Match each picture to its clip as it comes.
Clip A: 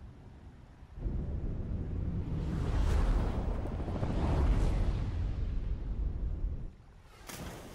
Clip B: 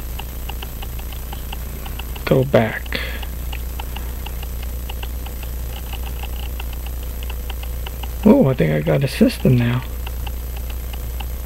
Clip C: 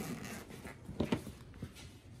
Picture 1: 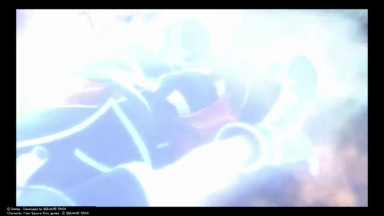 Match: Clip A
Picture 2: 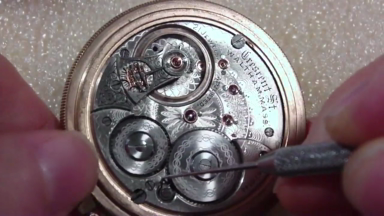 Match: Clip B